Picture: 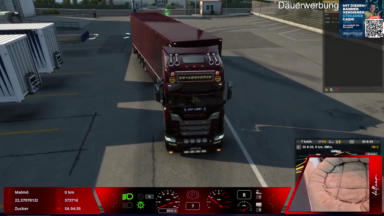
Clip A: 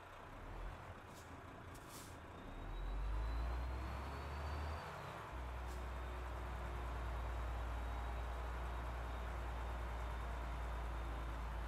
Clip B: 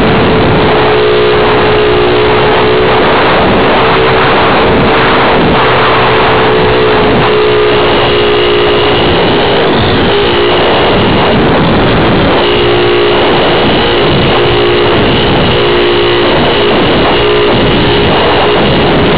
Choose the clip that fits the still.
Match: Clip A